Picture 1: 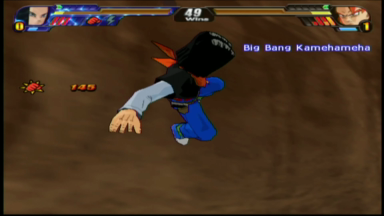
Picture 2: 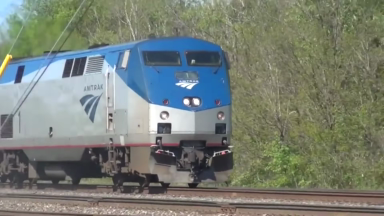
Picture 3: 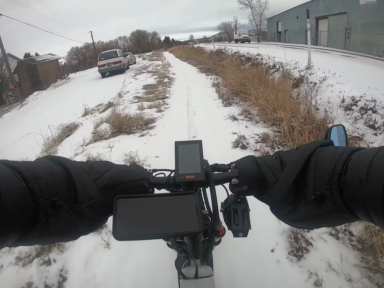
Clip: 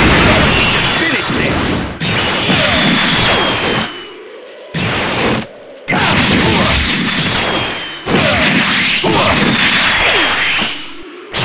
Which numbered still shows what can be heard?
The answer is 1